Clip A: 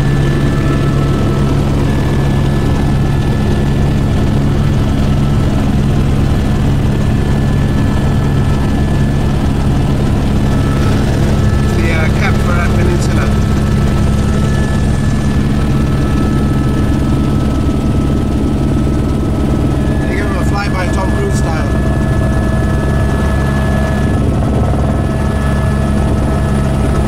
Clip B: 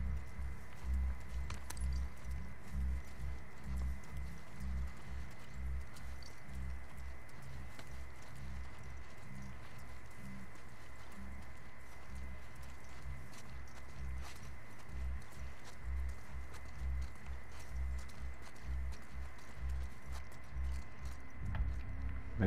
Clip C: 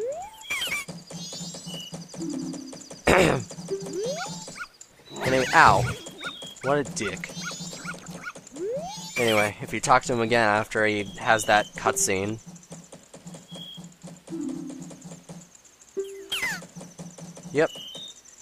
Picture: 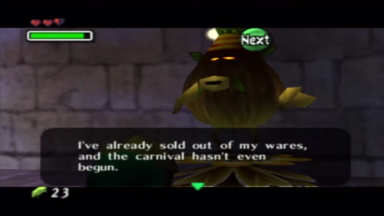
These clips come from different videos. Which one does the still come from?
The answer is C